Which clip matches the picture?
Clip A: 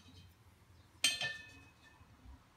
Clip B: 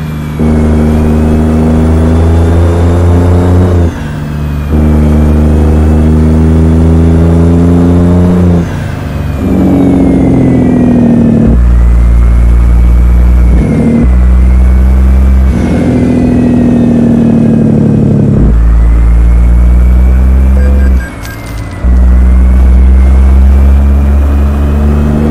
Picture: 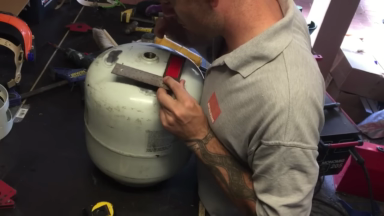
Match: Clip A